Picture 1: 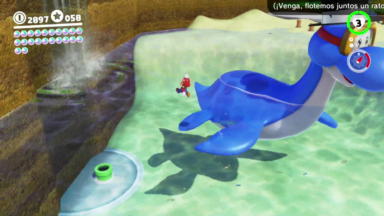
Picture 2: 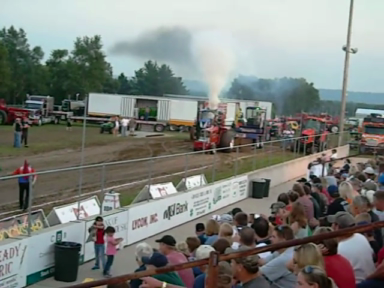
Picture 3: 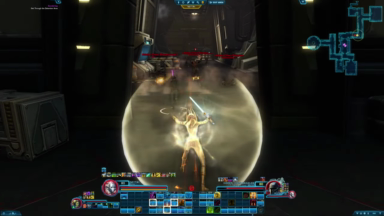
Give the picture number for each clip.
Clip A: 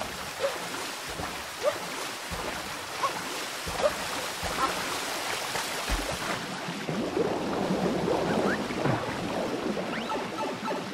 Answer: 1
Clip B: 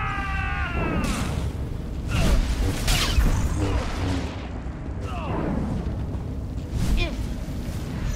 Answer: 3